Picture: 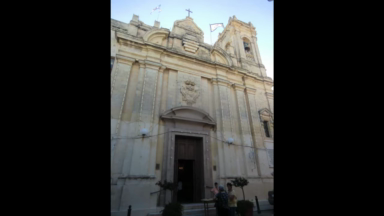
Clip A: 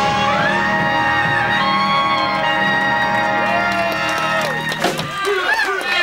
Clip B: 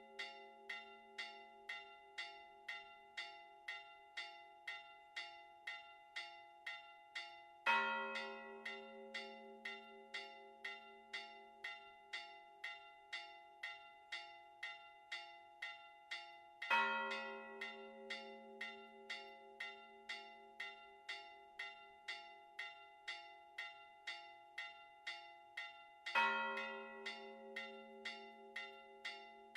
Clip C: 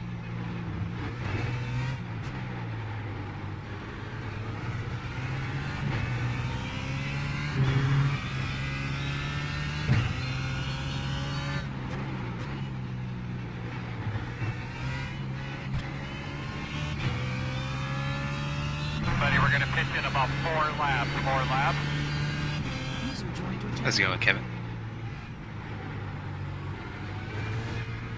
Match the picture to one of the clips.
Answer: B